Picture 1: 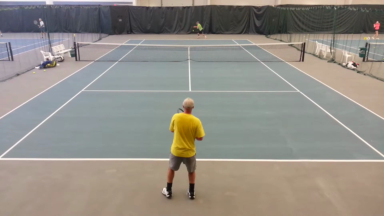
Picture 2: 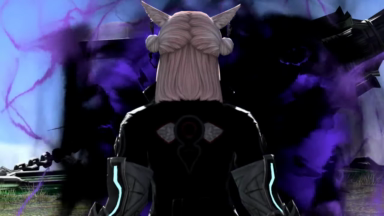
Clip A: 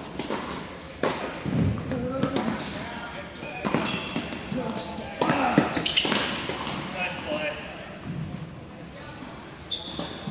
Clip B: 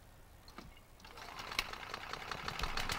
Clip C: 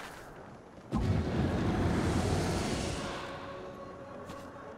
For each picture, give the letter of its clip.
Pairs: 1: A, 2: C